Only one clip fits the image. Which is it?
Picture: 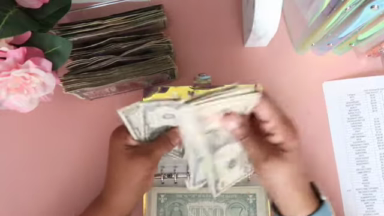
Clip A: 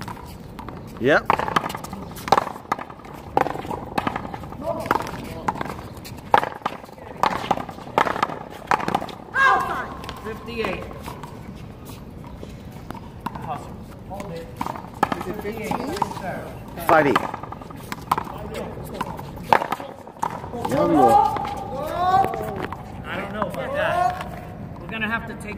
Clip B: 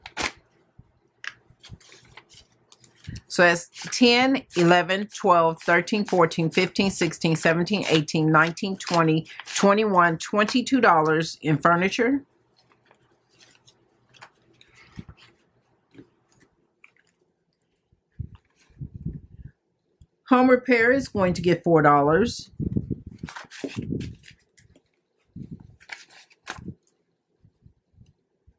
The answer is B